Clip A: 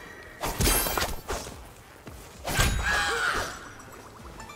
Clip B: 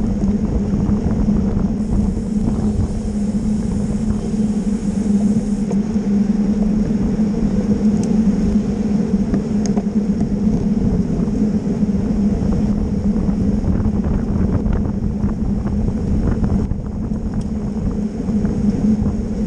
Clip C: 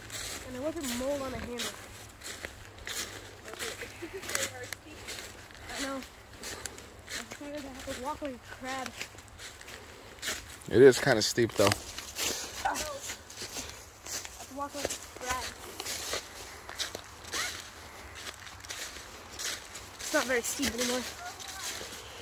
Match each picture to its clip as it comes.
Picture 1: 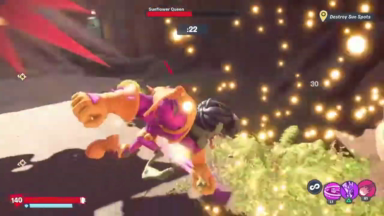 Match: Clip A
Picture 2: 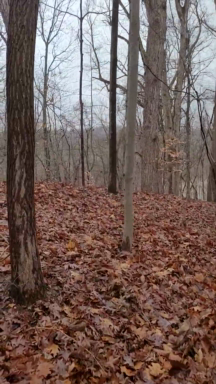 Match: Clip C